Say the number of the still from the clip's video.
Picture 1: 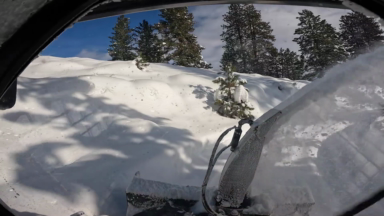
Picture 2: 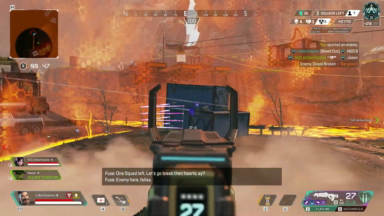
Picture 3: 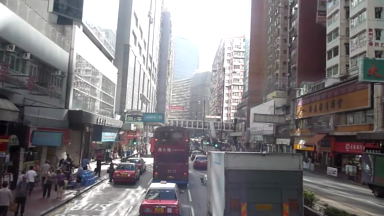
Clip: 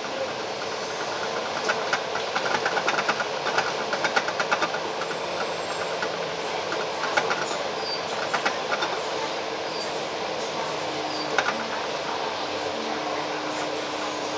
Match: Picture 3